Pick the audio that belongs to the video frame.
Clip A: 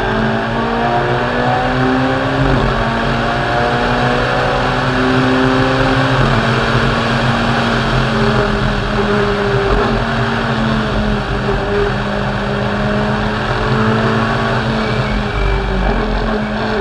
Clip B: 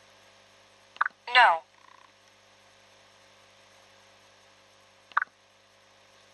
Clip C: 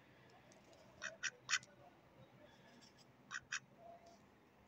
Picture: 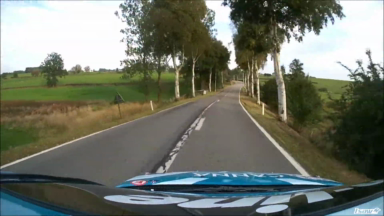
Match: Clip A